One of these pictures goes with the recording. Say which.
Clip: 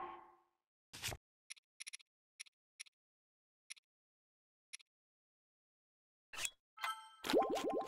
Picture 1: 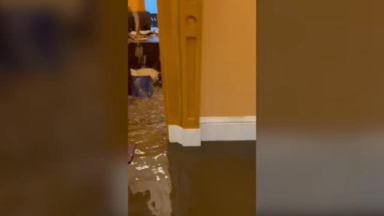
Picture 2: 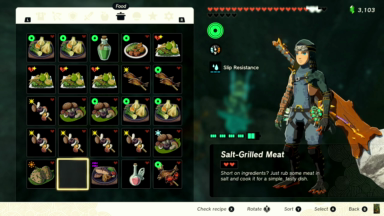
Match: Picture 2